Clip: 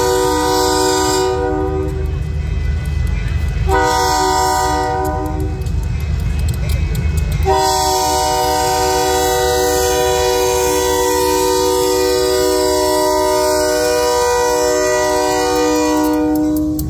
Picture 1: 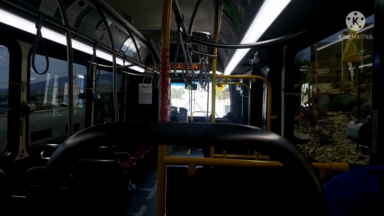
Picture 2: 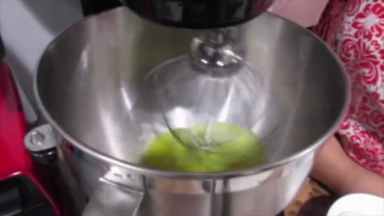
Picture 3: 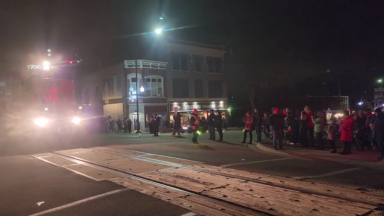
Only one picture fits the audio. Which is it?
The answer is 3